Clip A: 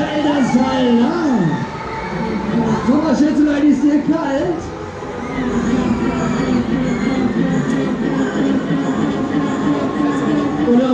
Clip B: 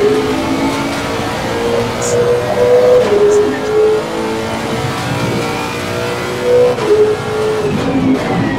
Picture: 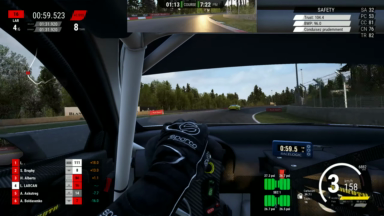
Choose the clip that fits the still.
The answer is B